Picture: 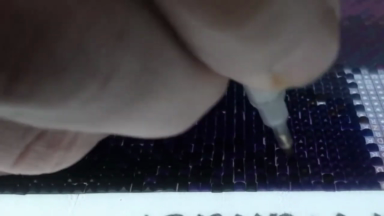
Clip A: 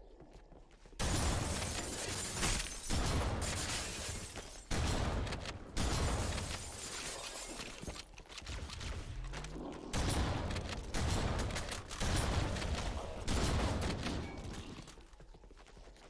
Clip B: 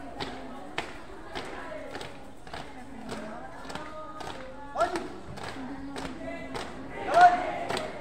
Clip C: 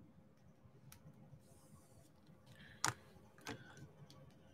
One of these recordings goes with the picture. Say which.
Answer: C